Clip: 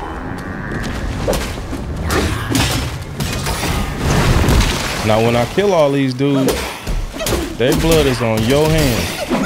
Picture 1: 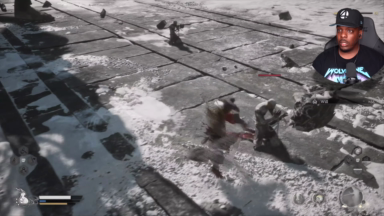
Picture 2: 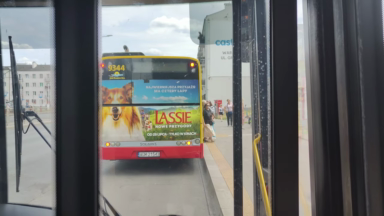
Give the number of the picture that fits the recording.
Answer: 1